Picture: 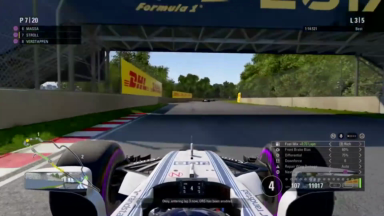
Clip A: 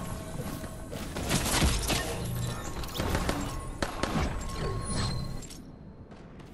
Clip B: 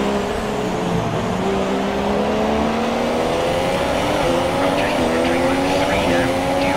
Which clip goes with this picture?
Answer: B